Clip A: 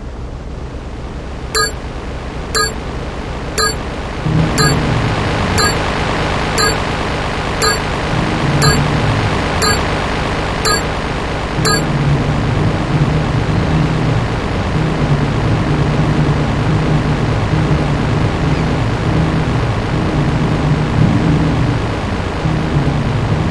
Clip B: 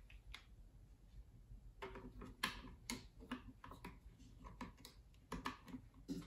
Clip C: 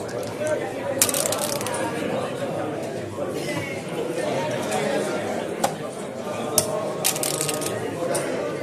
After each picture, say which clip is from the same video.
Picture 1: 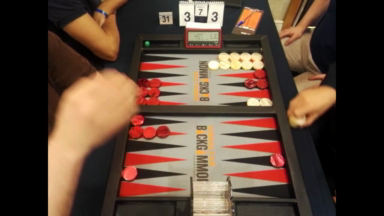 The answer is C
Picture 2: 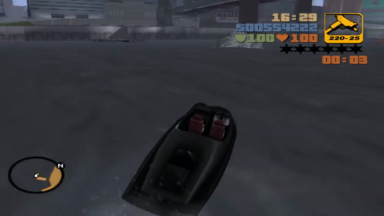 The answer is A